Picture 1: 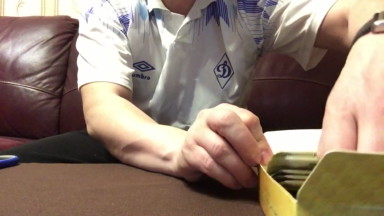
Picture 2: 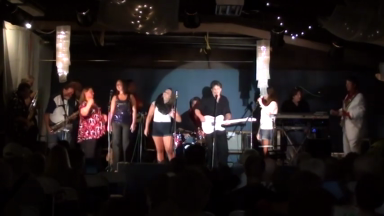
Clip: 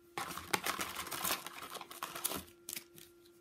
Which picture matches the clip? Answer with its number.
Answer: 1